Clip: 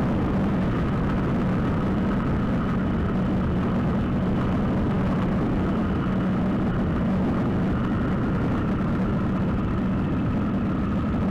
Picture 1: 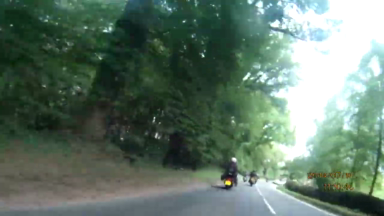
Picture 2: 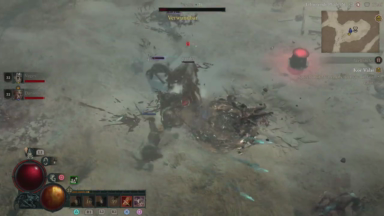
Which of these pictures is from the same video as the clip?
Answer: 1